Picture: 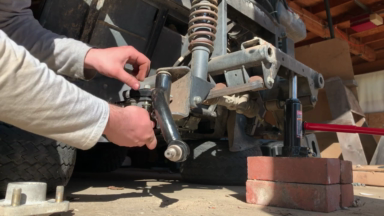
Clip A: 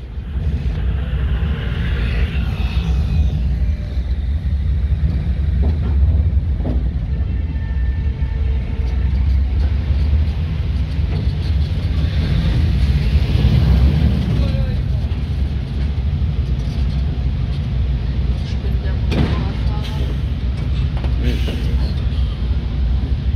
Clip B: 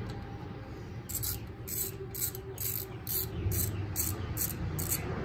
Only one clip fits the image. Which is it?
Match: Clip B